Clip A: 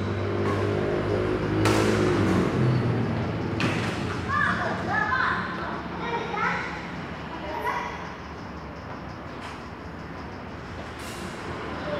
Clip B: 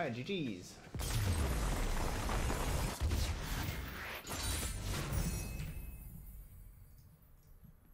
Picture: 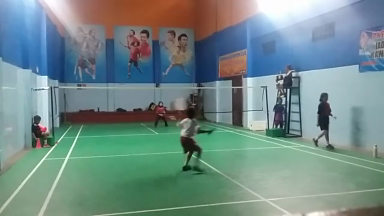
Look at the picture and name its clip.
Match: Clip A